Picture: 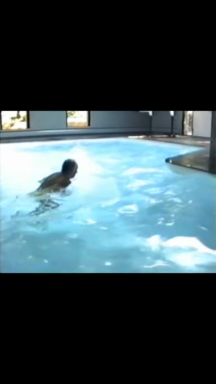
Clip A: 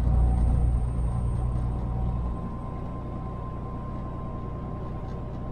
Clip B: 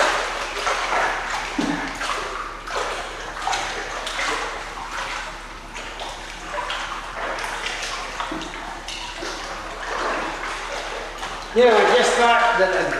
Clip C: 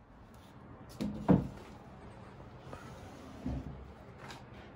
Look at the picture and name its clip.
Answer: B